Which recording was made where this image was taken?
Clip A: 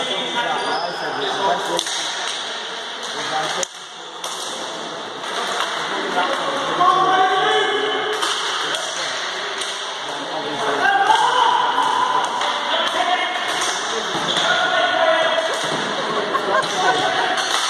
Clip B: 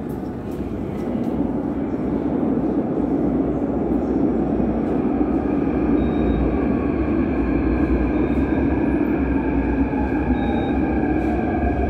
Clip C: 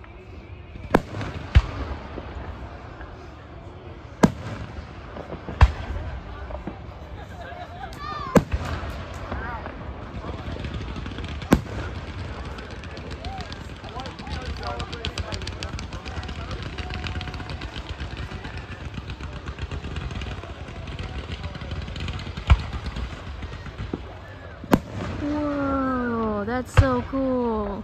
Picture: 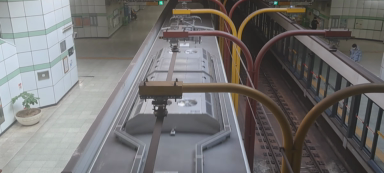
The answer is B